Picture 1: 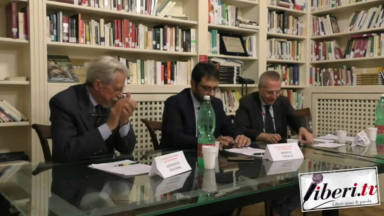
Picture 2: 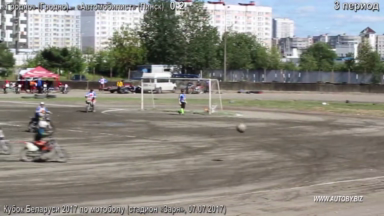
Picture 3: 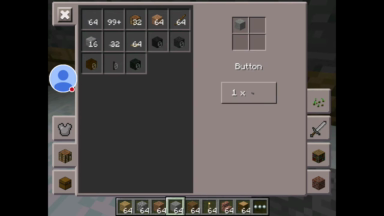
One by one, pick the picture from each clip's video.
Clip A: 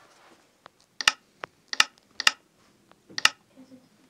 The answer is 3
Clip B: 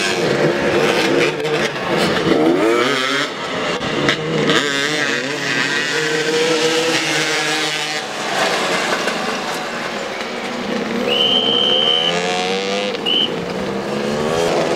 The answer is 2